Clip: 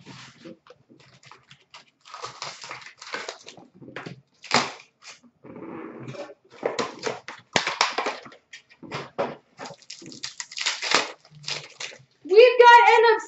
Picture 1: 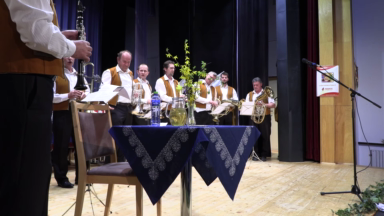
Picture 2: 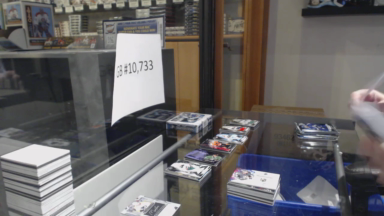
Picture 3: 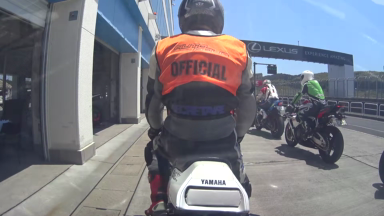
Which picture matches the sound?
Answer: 2